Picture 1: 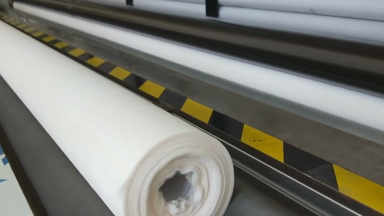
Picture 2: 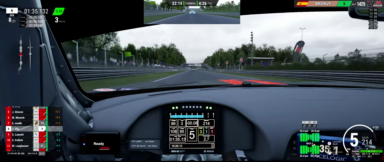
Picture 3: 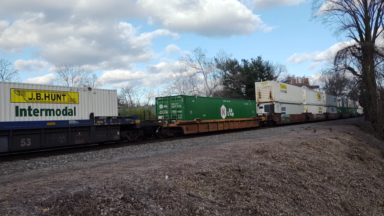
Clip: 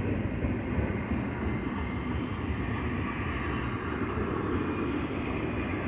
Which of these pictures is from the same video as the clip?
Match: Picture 3